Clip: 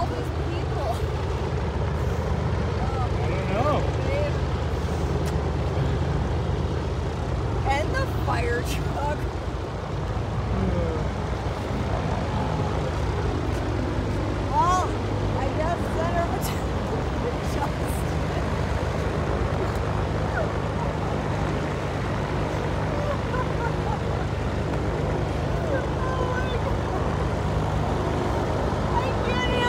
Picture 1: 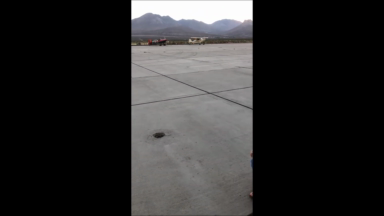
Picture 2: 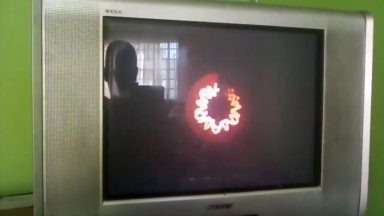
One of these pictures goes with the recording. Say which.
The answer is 1